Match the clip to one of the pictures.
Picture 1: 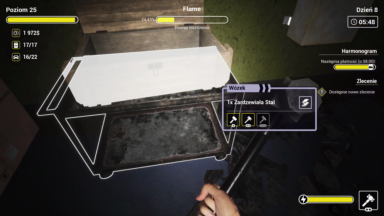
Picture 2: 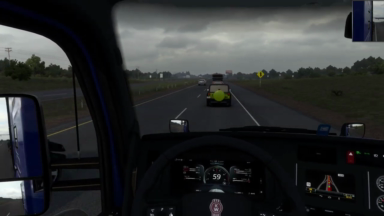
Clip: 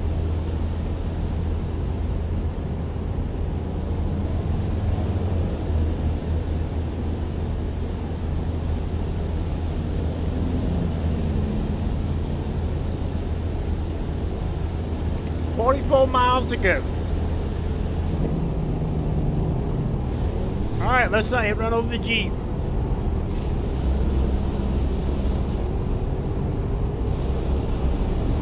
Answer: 2